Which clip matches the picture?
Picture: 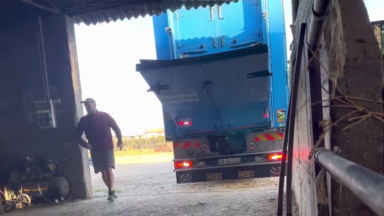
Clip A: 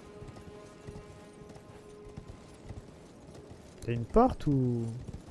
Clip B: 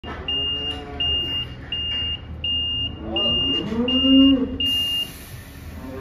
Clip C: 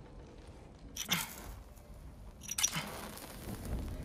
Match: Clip B